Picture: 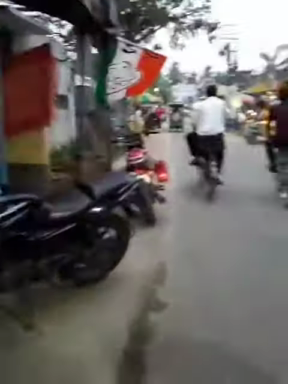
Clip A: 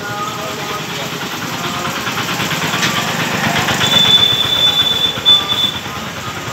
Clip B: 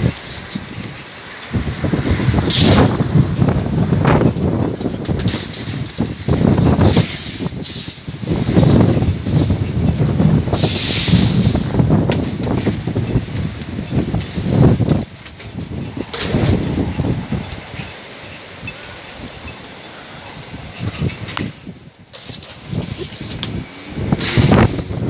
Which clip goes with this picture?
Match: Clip A